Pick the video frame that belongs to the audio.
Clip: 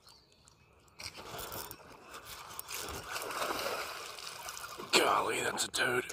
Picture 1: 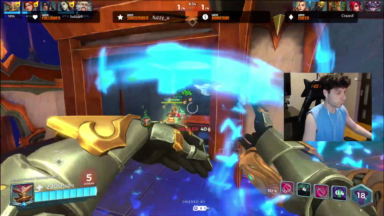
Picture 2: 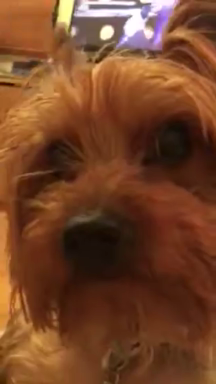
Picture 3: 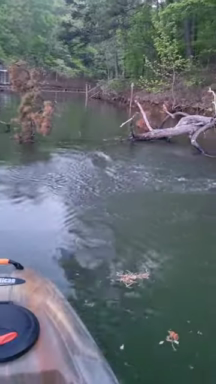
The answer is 3